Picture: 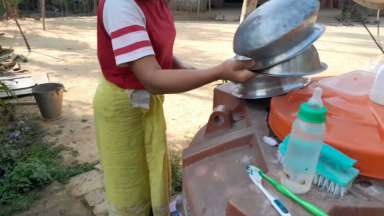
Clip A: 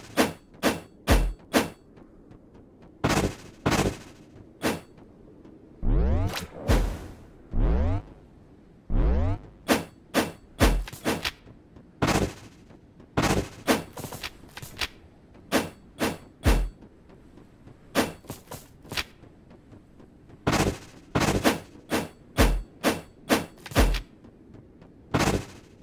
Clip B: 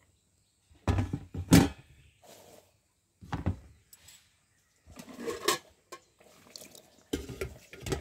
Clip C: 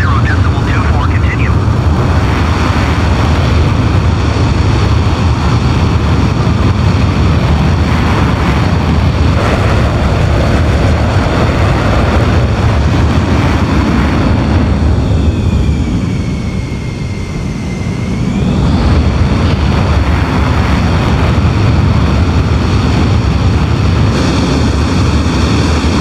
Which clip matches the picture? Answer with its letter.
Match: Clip B